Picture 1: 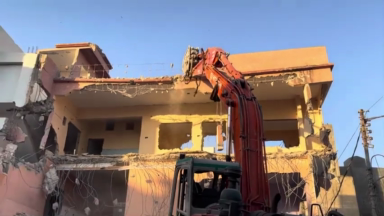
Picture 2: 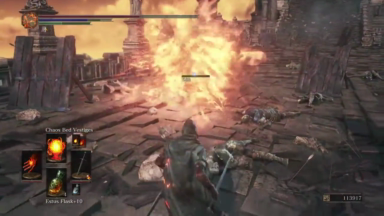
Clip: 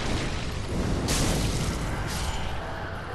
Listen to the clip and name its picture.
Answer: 2